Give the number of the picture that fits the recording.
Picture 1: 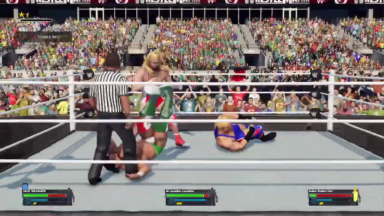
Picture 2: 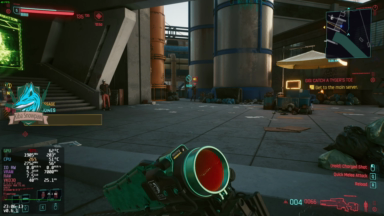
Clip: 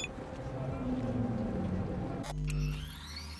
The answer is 2